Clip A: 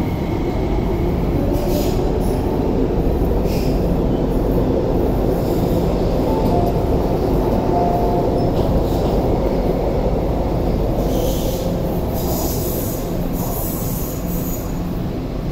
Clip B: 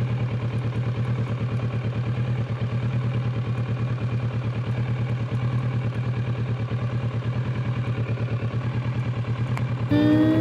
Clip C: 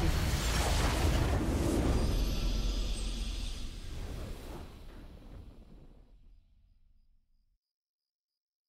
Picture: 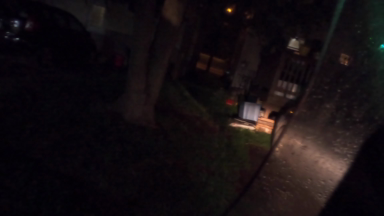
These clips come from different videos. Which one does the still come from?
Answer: B